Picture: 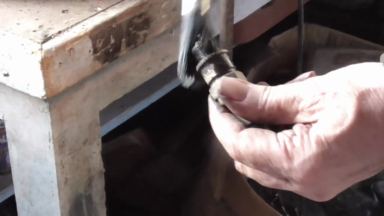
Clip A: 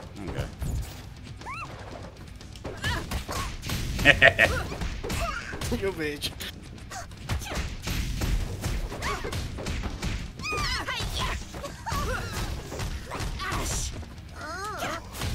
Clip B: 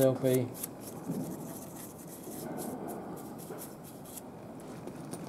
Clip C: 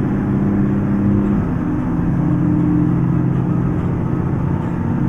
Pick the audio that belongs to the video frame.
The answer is B